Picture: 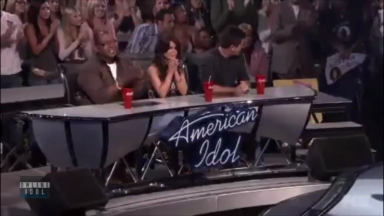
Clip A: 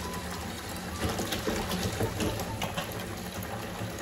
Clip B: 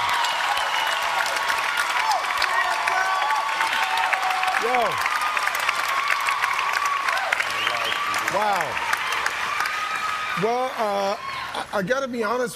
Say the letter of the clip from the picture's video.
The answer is B